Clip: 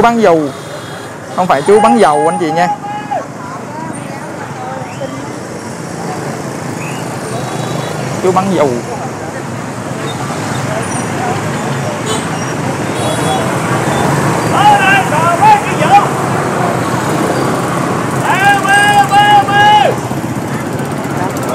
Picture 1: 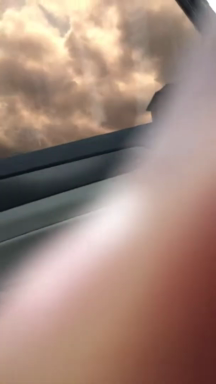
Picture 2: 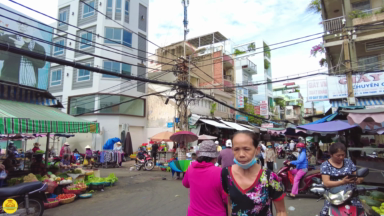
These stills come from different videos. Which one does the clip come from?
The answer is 2